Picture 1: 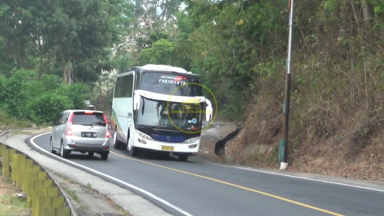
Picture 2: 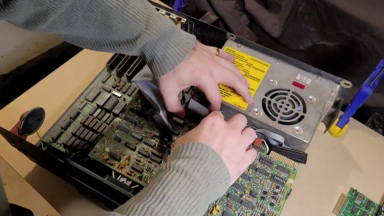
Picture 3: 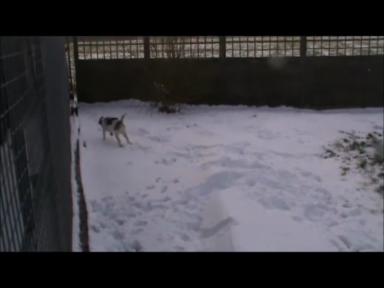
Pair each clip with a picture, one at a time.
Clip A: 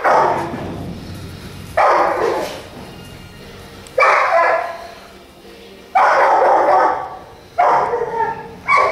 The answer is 3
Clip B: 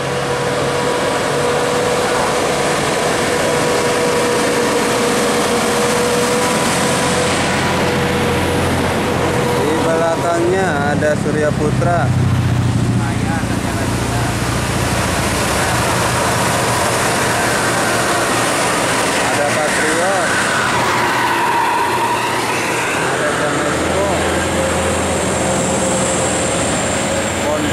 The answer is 1